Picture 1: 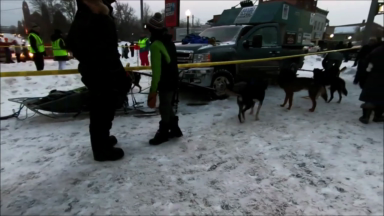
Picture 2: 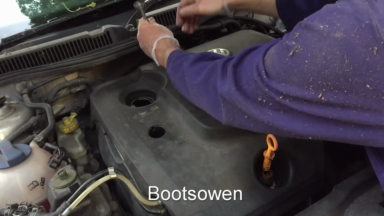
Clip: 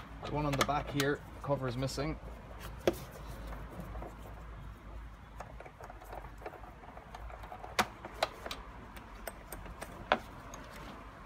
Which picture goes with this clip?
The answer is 2